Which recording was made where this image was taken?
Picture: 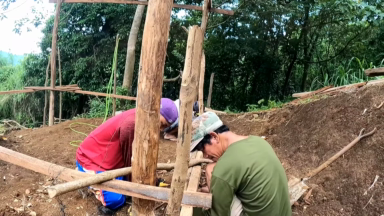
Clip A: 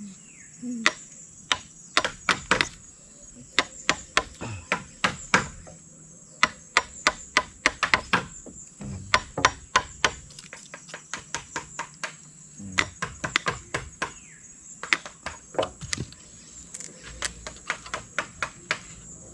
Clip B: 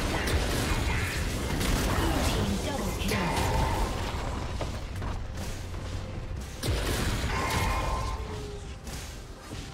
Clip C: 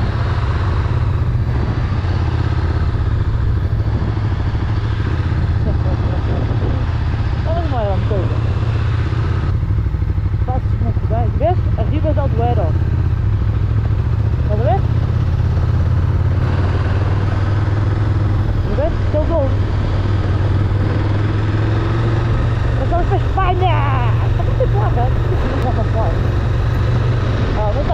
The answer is A